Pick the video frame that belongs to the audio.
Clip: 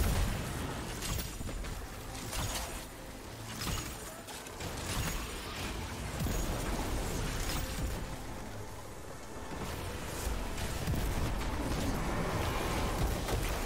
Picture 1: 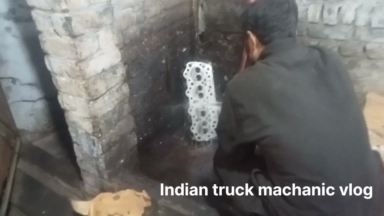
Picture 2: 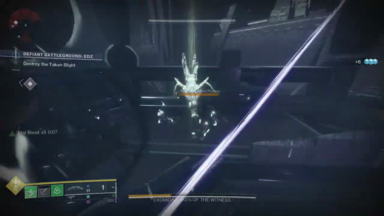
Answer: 2